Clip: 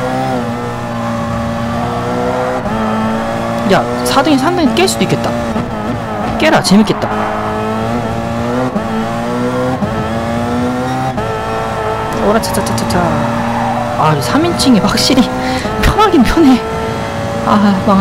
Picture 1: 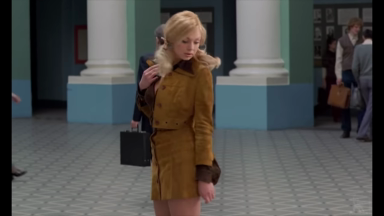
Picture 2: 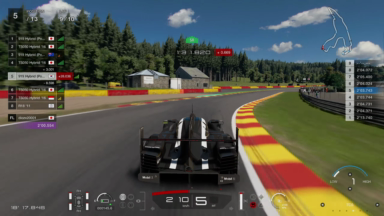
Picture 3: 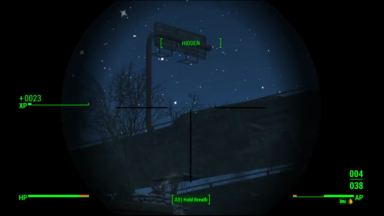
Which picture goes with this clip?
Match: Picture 2